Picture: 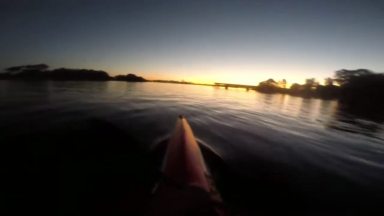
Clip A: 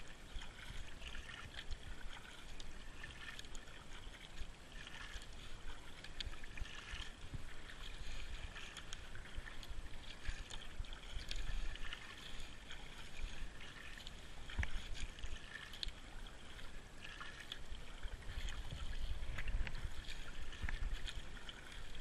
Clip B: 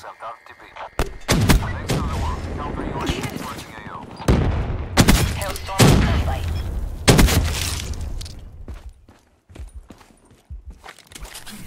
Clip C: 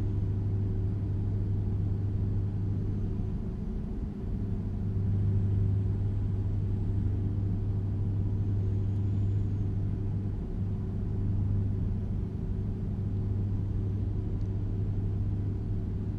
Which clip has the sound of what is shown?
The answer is A